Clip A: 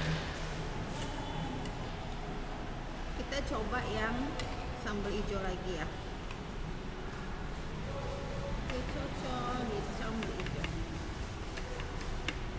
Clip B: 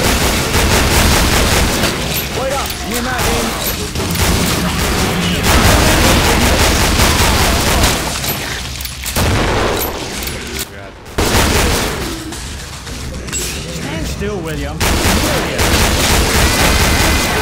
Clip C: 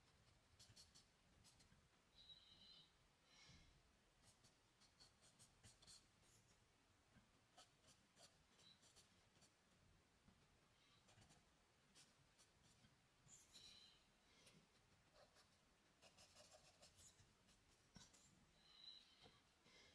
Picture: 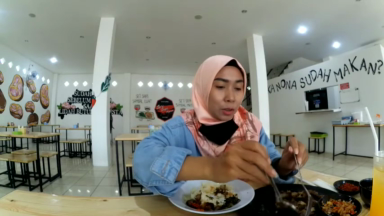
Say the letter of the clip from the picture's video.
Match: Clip A